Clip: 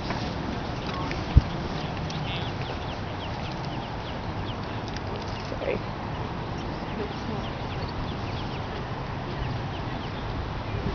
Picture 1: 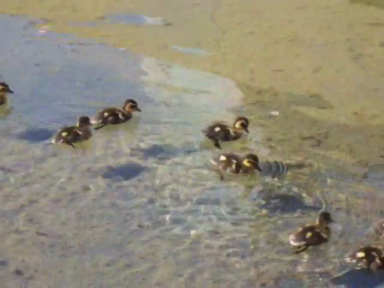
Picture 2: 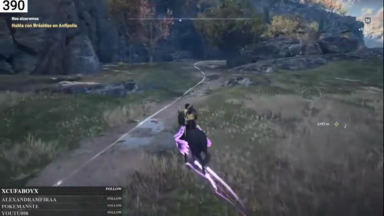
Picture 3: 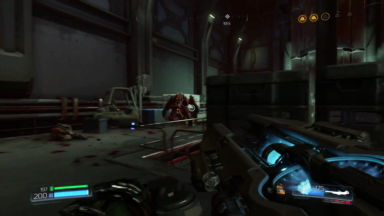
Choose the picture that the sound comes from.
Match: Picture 1